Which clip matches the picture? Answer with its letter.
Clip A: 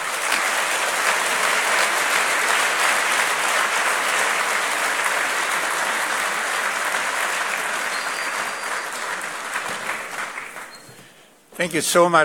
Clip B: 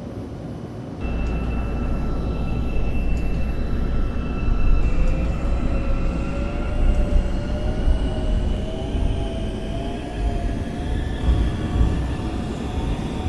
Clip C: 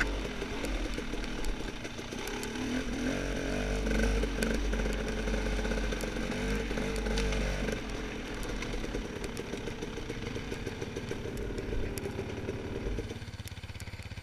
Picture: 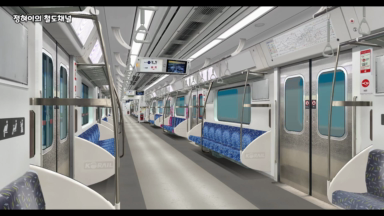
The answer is B